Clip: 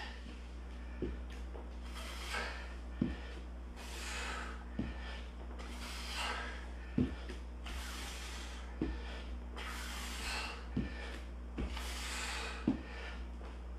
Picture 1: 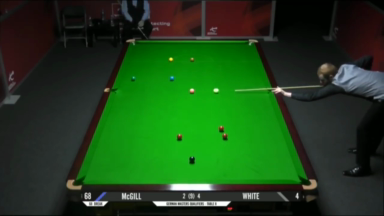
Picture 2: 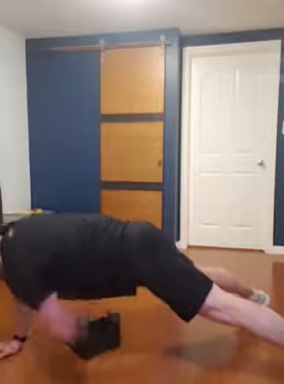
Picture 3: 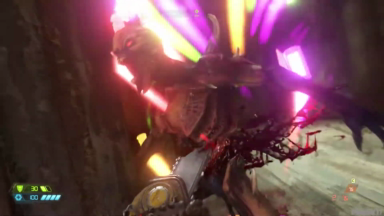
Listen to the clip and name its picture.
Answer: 2